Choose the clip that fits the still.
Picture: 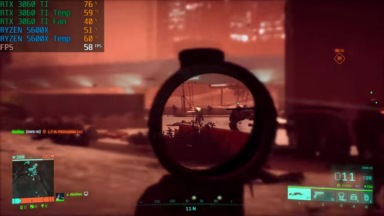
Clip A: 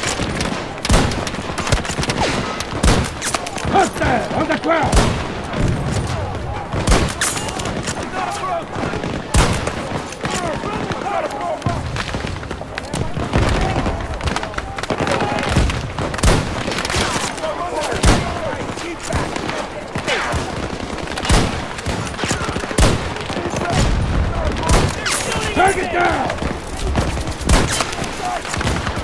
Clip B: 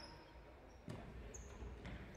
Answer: A